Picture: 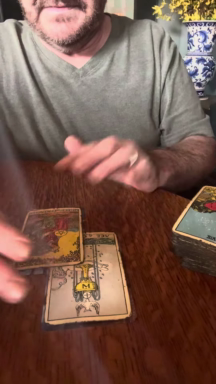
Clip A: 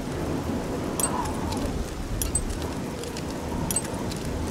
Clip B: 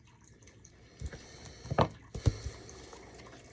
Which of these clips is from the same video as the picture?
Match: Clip B